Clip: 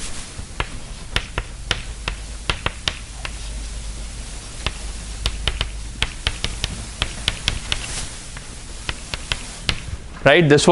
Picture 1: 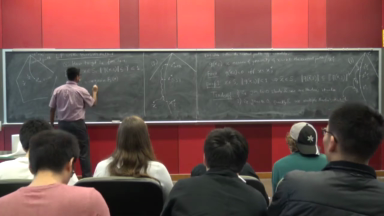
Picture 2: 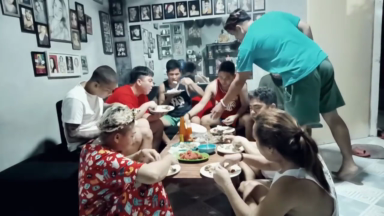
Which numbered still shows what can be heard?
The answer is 1